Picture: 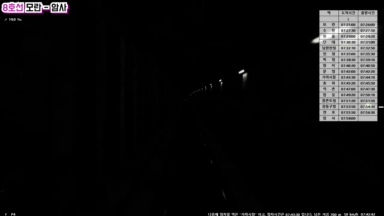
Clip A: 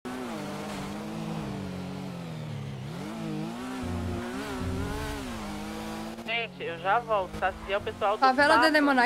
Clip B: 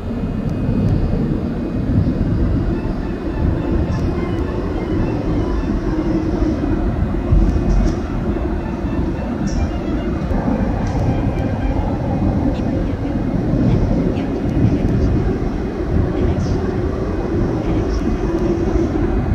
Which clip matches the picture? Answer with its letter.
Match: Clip B